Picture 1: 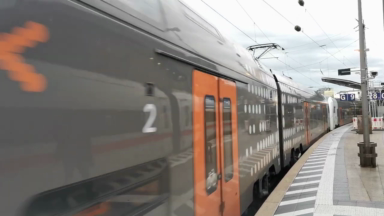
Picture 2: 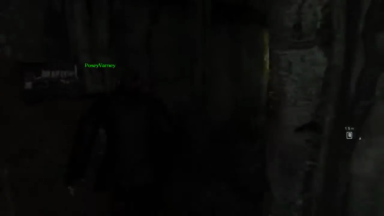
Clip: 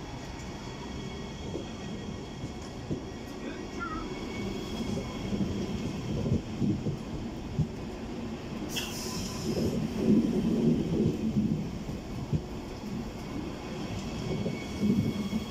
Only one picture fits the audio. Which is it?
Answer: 1